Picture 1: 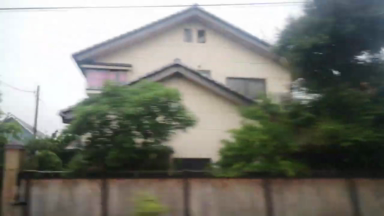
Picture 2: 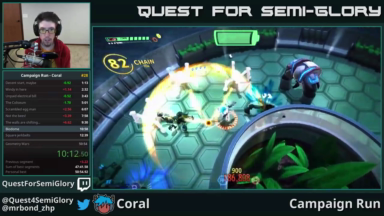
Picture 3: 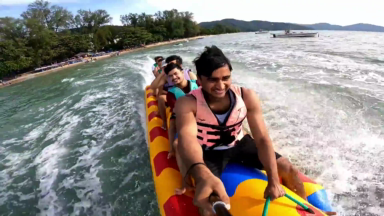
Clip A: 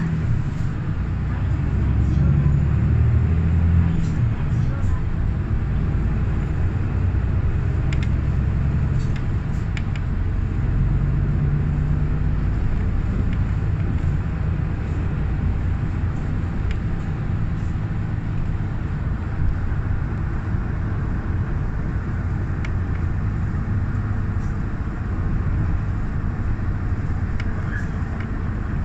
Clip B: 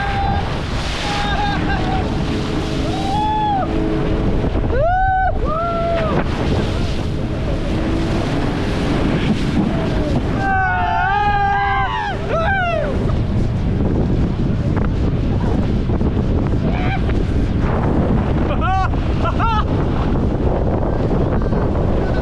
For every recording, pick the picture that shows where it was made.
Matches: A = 1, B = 3